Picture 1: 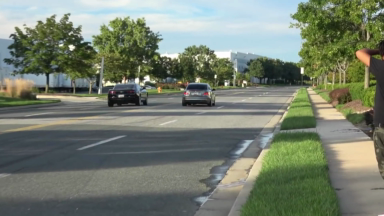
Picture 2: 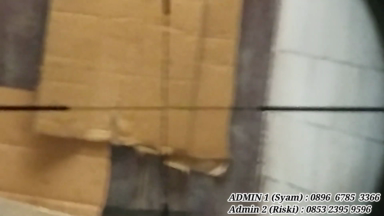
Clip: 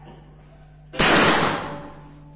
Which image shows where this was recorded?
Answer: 2